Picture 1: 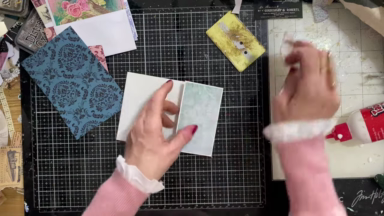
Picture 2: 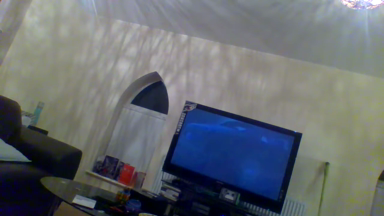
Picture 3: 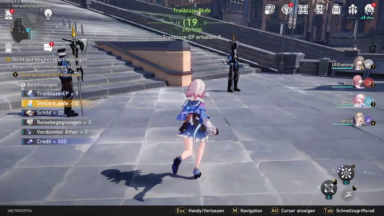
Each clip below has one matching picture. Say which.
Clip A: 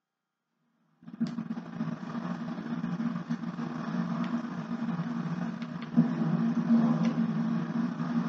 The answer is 2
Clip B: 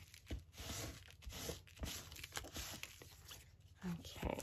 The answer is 1